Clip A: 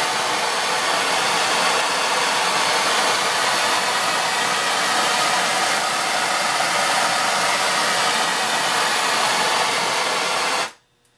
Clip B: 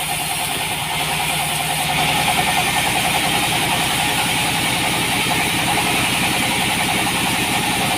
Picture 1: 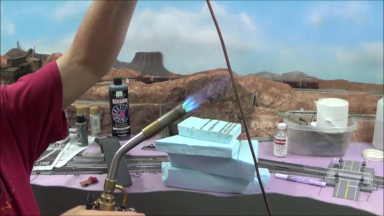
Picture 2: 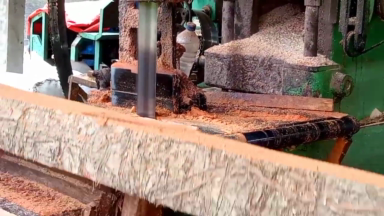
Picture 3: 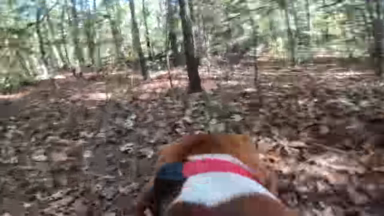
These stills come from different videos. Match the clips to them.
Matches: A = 1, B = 2